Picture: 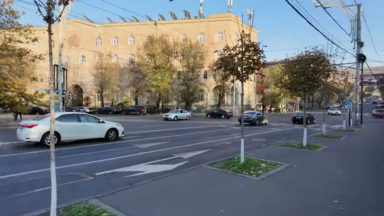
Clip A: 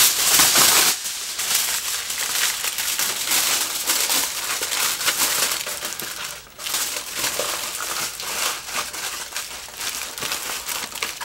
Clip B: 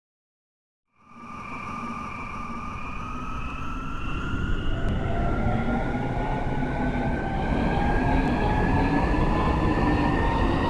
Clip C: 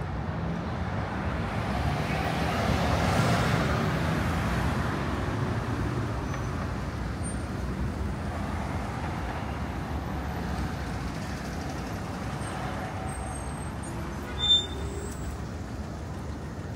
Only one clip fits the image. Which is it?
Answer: C